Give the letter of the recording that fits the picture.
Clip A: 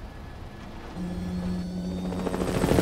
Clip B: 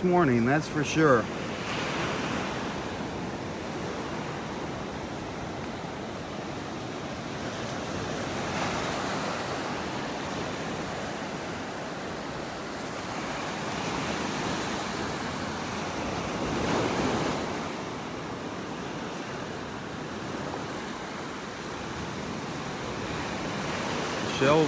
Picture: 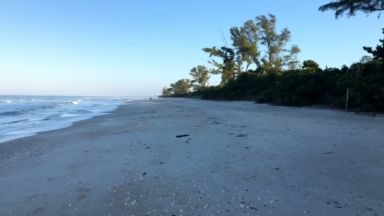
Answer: B